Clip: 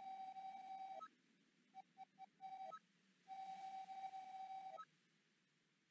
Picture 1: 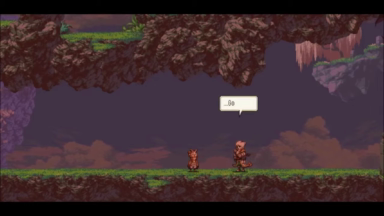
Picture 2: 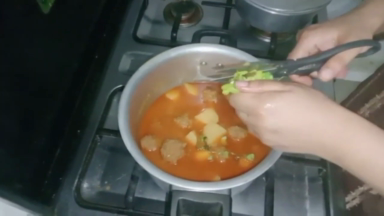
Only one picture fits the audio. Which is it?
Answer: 1